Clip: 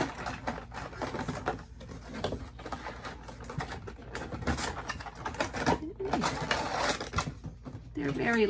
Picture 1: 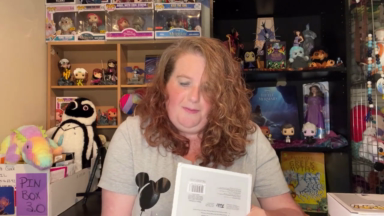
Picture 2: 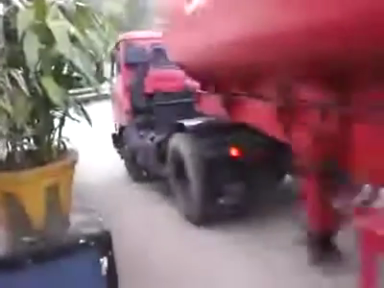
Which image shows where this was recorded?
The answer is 1